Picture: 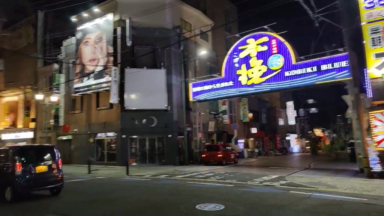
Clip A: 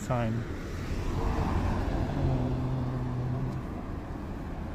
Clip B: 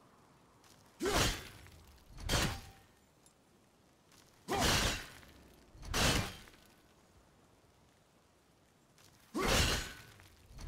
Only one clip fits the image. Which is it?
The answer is A